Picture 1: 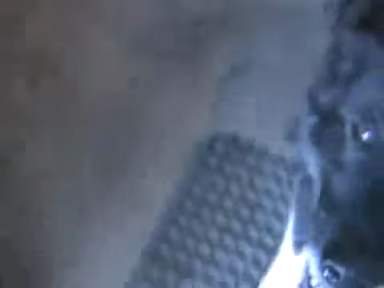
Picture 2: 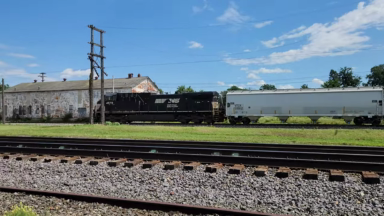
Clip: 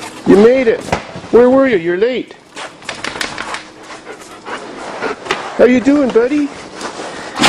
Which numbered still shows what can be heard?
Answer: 1